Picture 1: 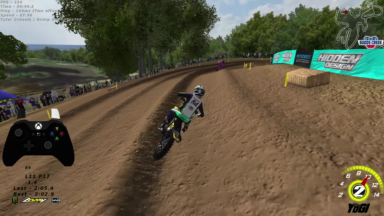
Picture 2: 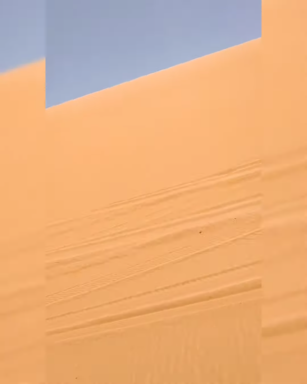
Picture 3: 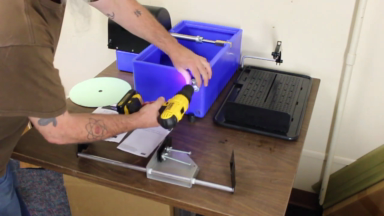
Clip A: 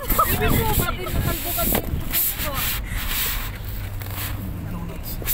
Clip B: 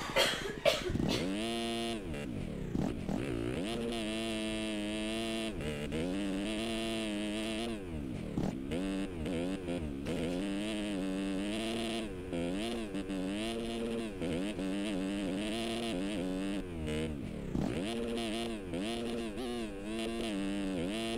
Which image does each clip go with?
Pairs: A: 2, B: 1